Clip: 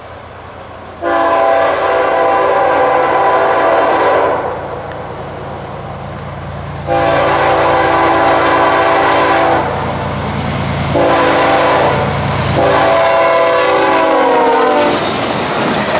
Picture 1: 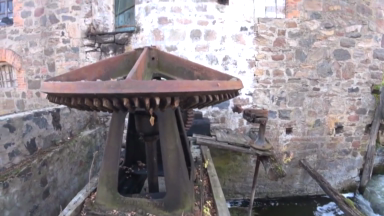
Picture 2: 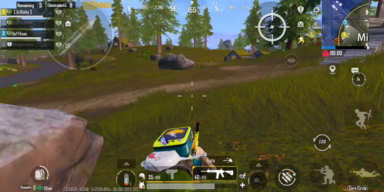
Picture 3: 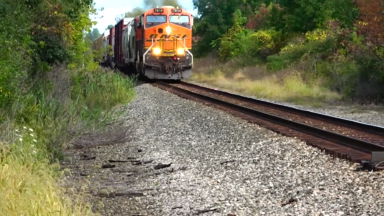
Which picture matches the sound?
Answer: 3